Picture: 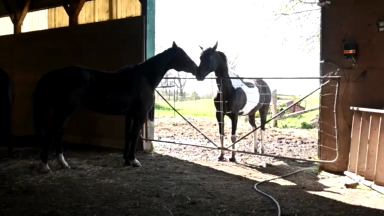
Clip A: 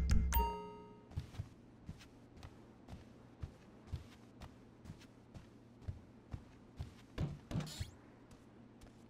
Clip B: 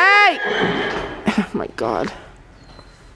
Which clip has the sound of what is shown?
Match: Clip B